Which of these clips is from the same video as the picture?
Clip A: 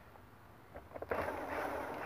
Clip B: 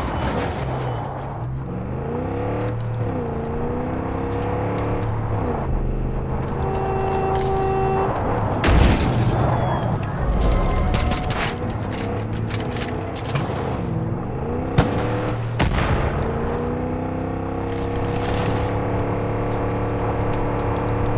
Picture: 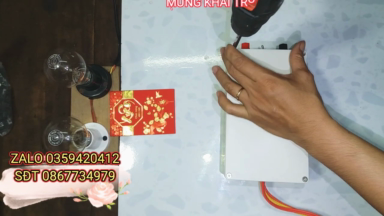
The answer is A